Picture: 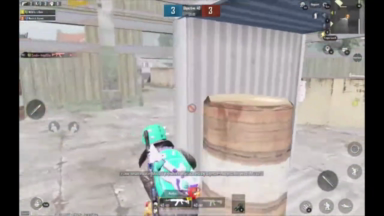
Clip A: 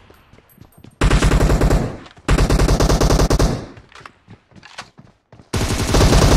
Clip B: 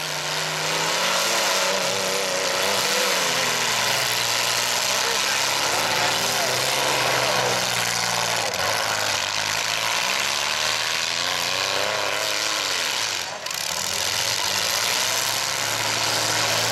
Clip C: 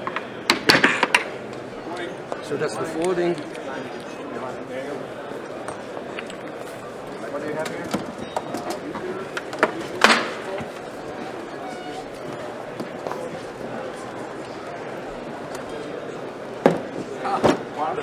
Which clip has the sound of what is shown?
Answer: A